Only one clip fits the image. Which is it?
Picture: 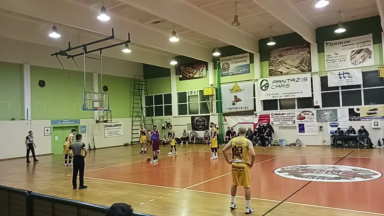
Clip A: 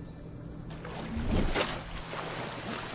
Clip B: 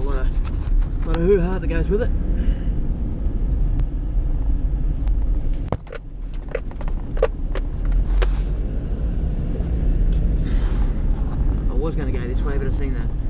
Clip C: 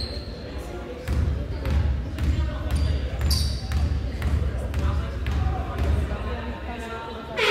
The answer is C